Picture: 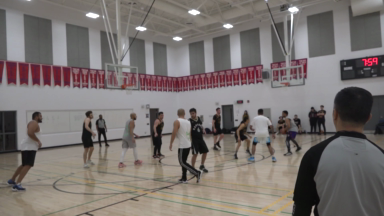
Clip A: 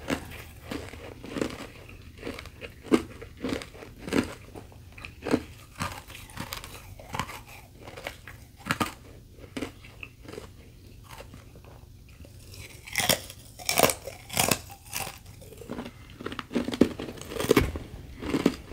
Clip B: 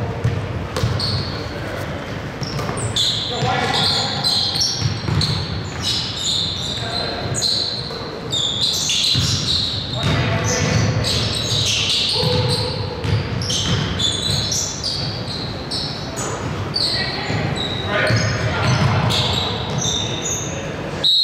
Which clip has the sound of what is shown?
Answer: B